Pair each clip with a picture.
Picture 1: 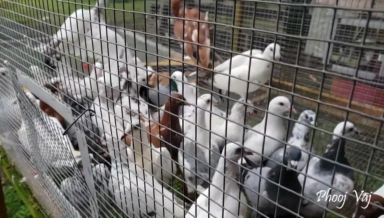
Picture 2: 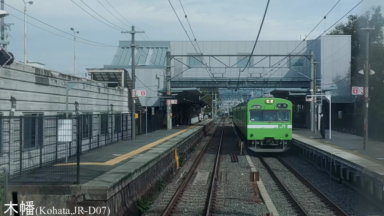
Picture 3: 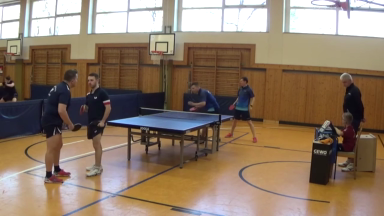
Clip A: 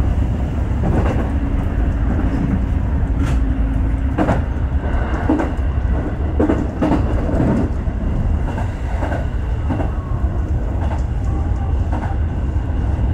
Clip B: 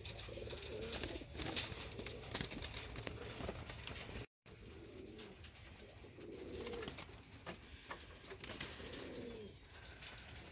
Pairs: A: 2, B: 1